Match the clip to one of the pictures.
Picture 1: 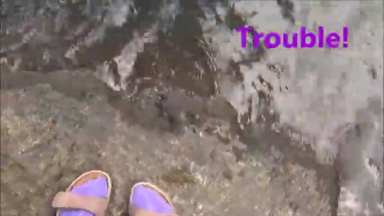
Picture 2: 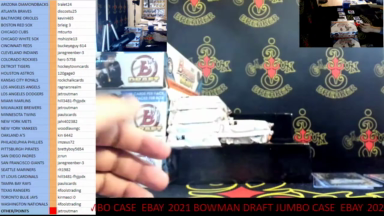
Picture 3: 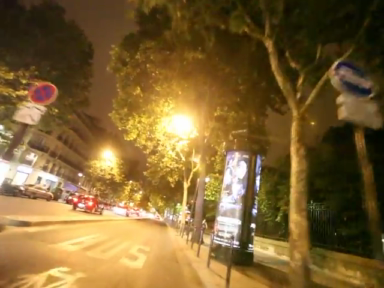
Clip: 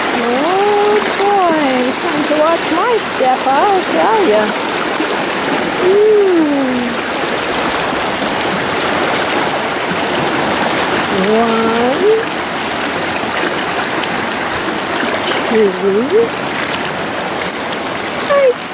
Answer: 1